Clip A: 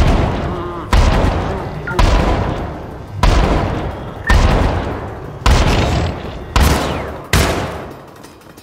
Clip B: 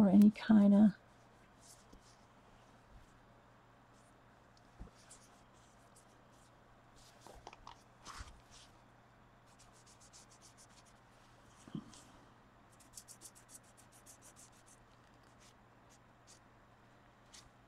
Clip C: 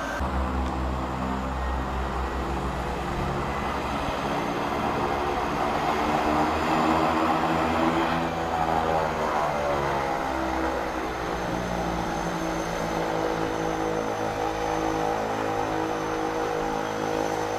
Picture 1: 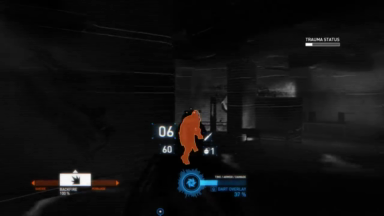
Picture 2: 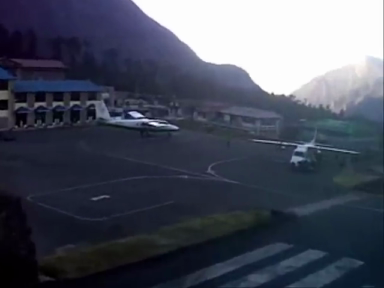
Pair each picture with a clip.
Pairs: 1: A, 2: C